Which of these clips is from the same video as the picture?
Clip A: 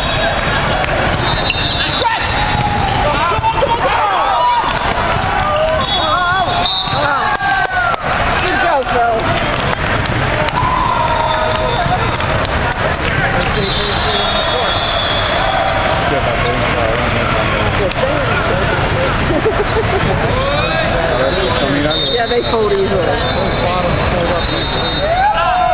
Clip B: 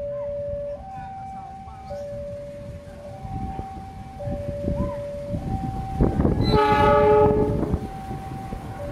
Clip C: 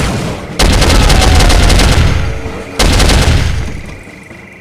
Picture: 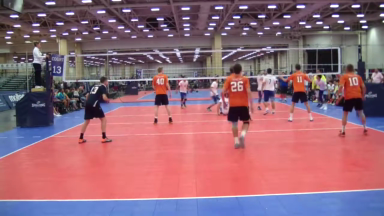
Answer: A